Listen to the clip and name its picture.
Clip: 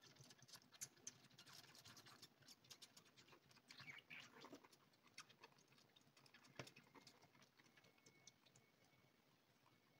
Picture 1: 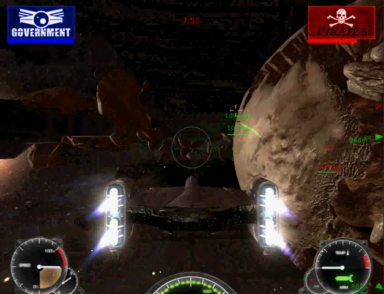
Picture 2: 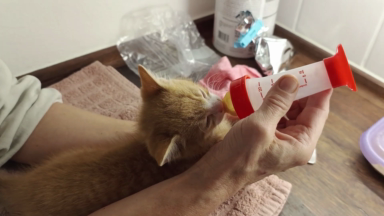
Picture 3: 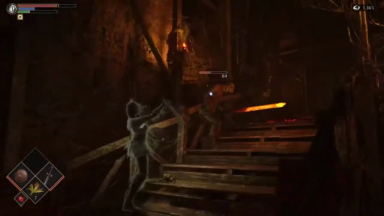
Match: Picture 2